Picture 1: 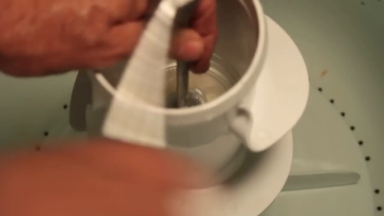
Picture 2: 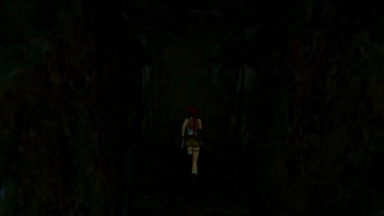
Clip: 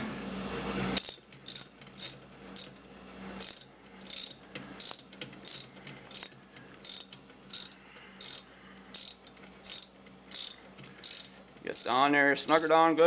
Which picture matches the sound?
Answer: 1